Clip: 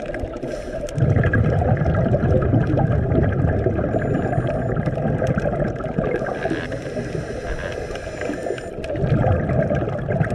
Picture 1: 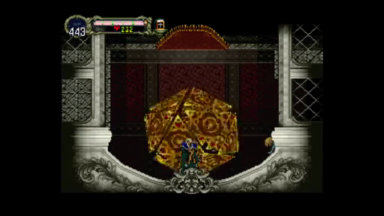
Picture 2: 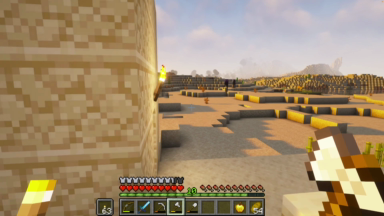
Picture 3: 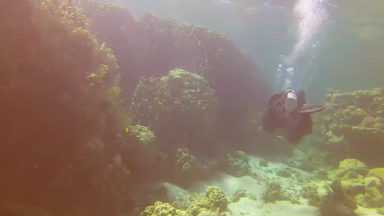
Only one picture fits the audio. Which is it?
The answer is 3